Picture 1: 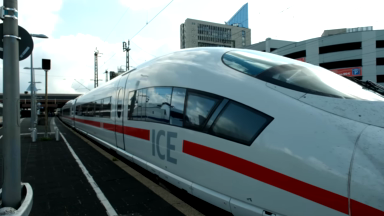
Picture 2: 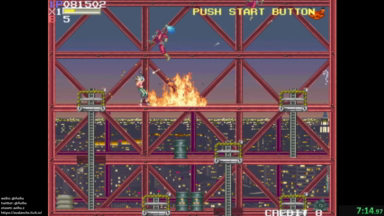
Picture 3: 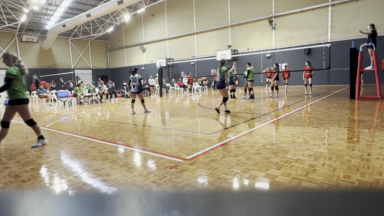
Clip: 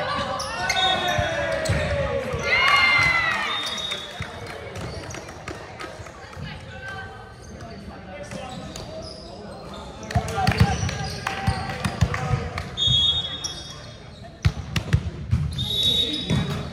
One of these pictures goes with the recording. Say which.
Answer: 3